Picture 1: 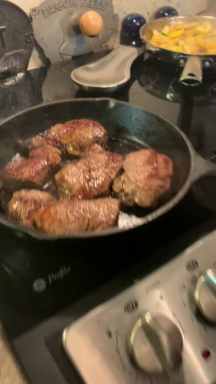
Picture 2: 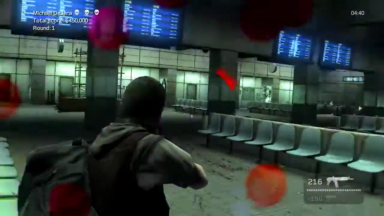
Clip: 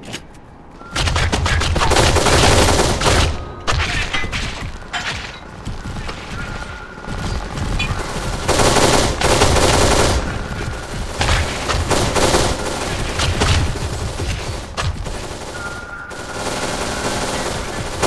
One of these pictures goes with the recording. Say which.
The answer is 2